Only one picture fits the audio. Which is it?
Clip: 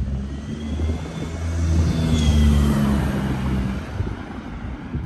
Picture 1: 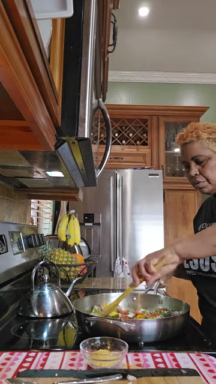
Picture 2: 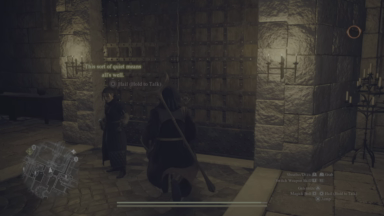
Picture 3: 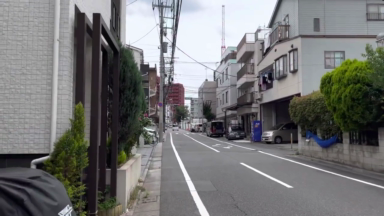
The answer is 3